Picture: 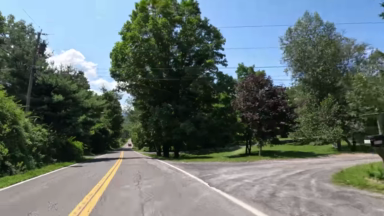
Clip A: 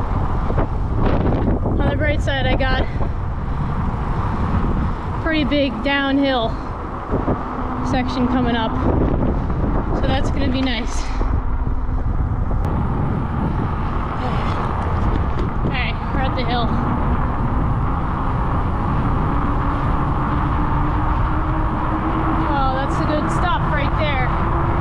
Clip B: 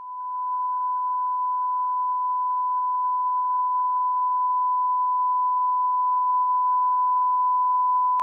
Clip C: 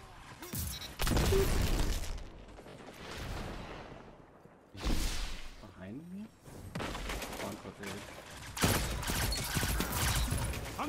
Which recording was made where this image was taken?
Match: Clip A